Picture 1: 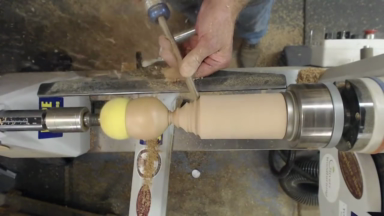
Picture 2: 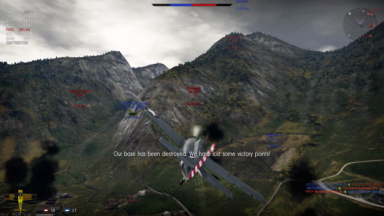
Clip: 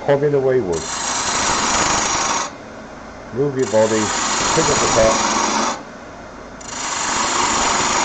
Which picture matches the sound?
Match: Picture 1